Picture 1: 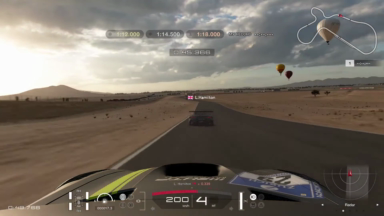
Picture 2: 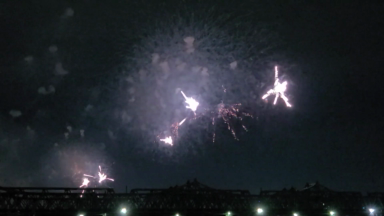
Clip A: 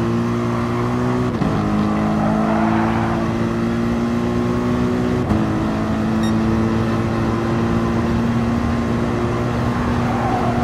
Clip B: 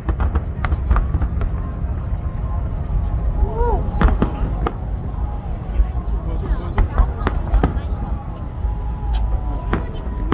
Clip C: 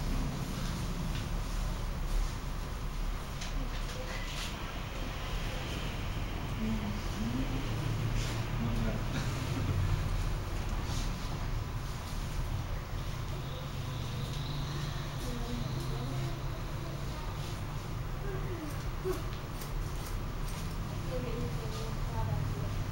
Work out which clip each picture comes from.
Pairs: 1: A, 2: B